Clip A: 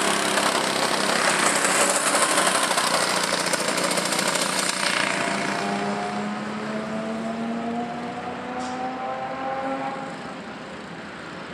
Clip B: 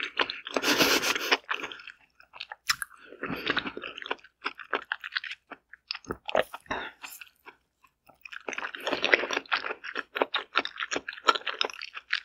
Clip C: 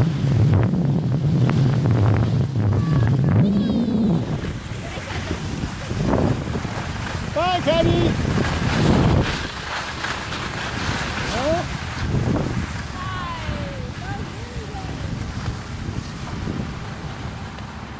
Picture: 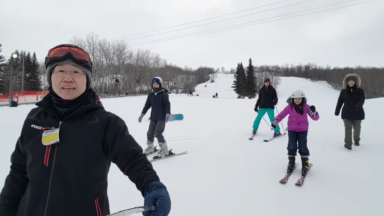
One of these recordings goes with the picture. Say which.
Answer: C